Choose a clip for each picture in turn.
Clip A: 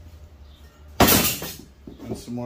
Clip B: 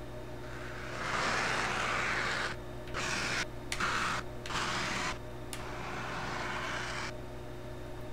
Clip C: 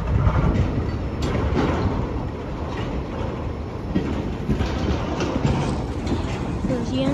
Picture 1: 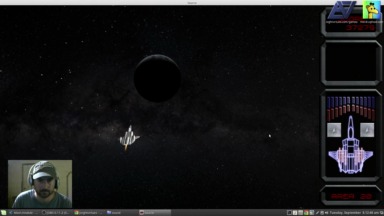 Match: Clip B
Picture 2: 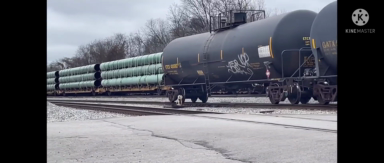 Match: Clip C